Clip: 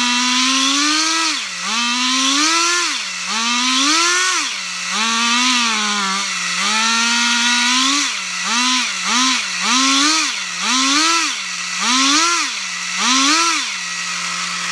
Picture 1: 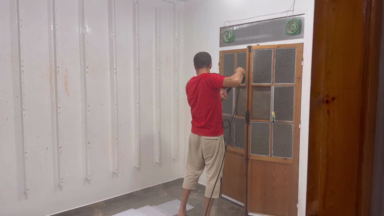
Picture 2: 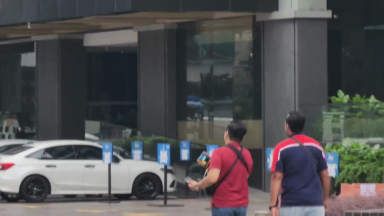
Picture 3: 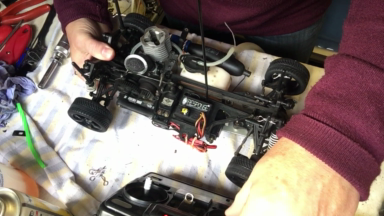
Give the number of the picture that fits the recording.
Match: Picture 3